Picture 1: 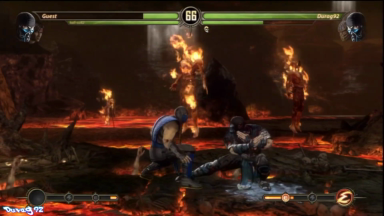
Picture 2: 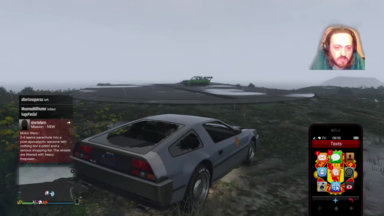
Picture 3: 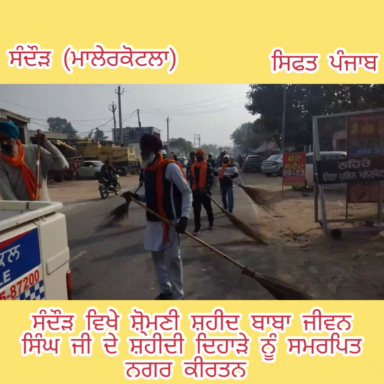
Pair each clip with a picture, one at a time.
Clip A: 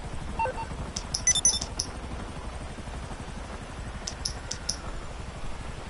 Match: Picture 2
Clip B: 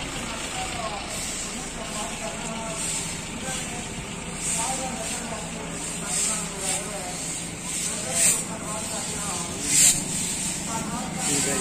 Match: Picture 3